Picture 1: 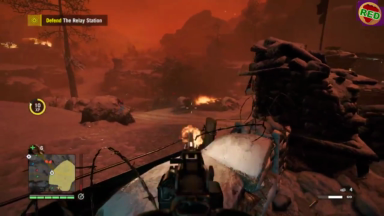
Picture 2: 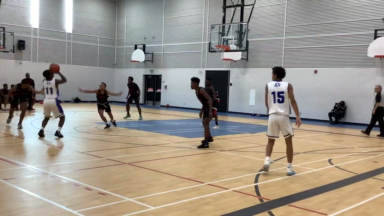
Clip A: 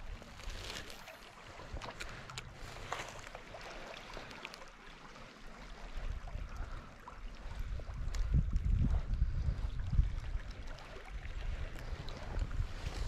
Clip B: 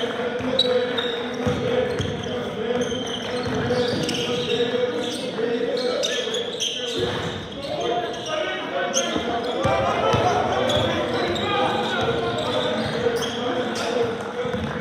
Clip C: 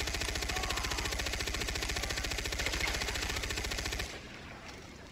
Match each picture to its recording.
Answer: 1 C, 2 B